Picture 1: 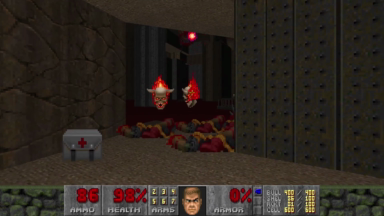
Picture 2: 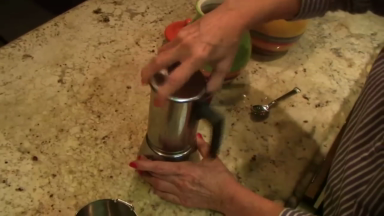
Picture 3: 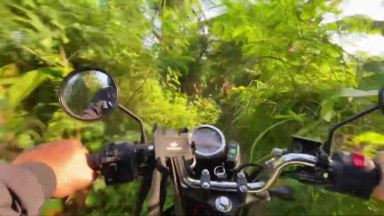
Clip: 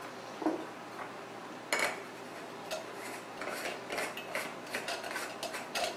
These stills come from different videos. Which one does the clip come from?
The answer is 2